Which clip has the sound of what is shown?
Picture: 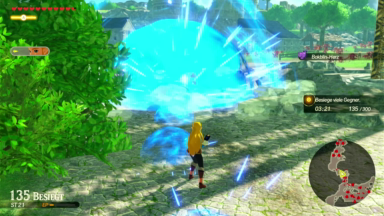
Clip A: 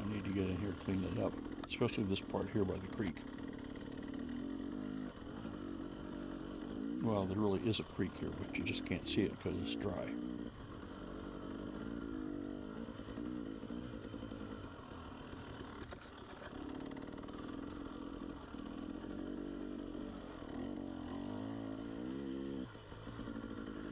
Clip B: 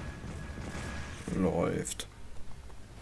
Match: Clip B